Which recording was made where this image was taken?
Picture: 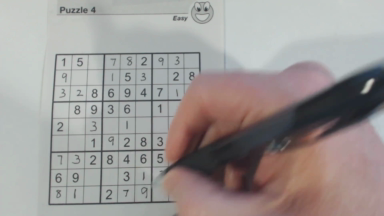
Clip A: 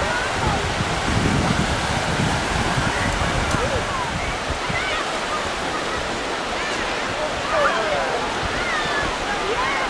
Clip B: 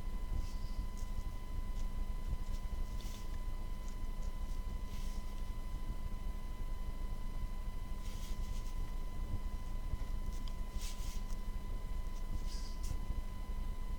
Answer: B